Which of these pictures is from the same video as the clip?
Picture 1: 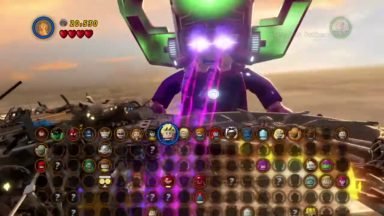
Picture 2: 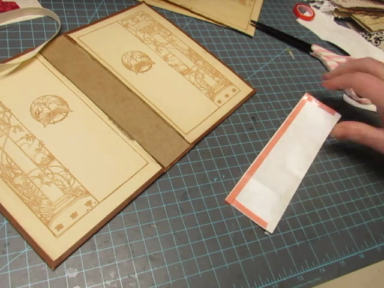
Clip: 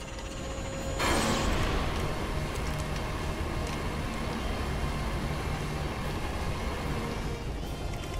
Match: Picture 1